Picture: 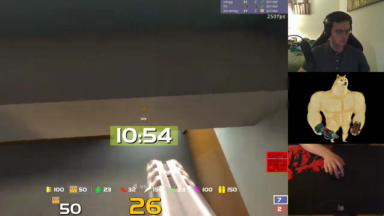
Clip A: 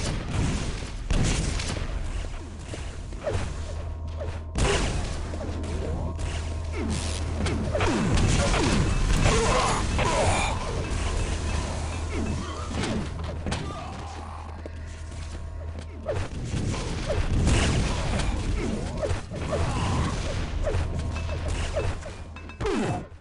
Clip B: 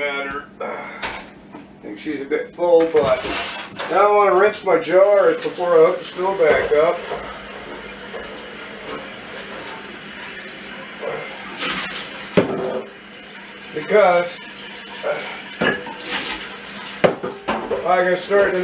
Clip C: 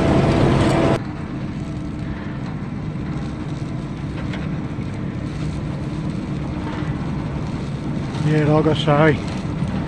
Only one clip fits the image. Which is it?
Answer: A